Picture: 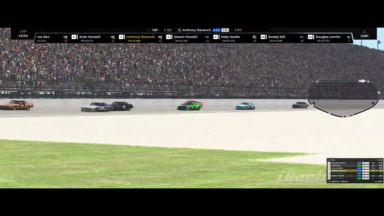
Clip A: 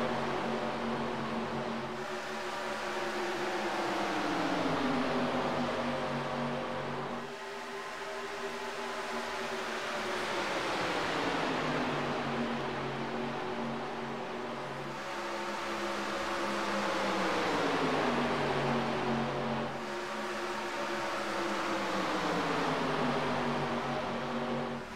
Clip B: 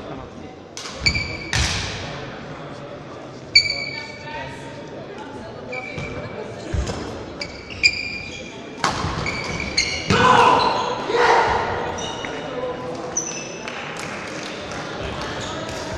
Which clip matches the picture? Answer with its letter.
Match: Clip A